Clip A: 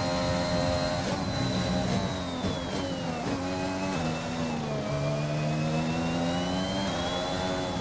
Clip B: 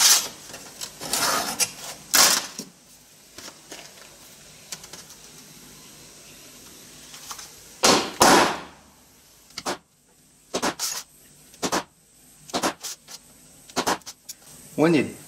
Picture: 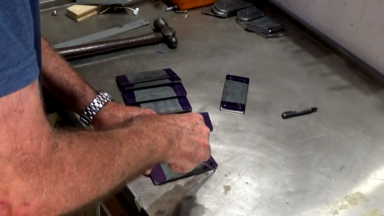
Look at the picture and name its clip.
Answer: B